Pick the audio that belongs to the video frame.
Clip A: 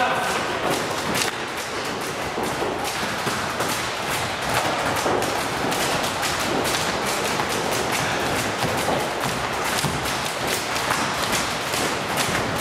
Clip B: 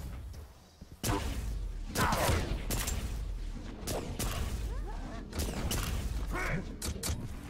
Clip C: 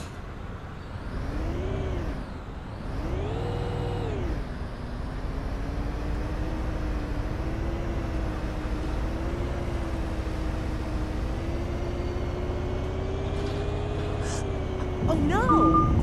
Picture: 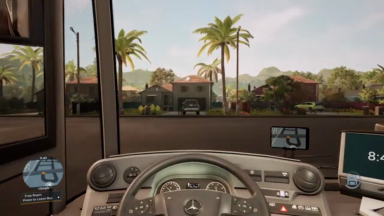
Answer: C